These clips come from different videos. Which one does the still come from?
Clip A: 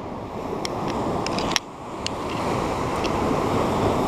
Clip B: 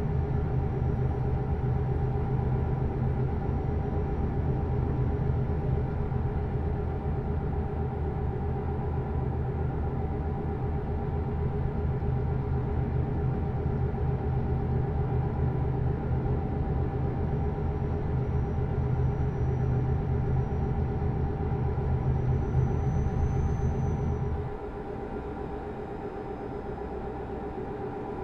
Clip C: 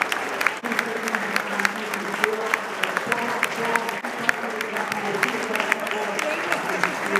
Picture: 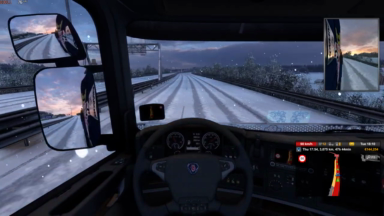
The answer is B